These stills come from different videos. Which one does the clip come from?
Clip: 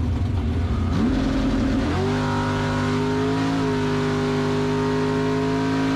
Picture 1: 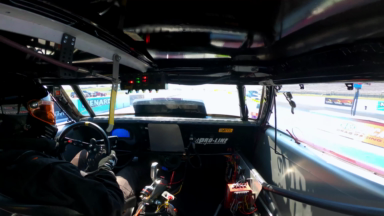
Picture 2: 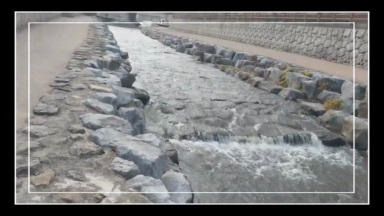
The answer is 1